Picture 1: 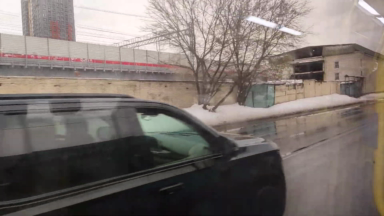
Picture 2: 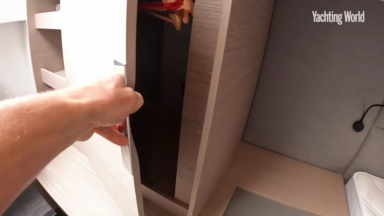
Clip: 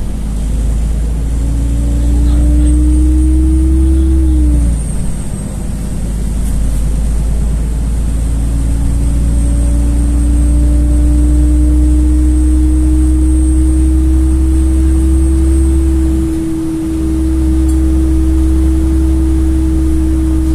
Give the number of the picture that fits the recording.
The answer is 1